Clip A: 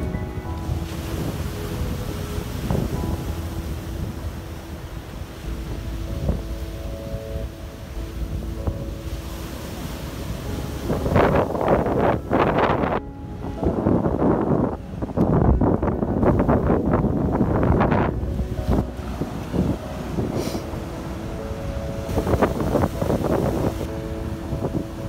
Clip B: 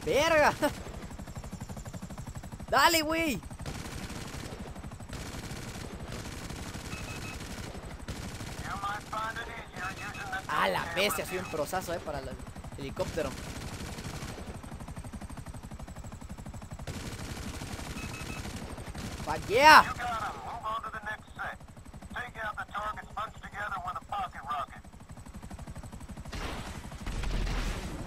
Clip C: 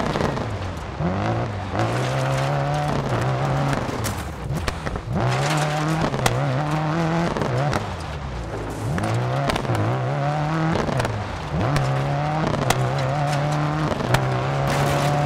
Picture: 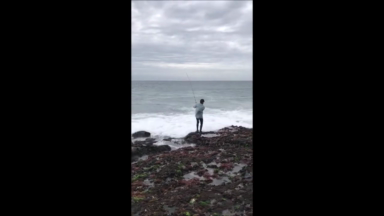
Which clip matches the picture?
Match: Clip A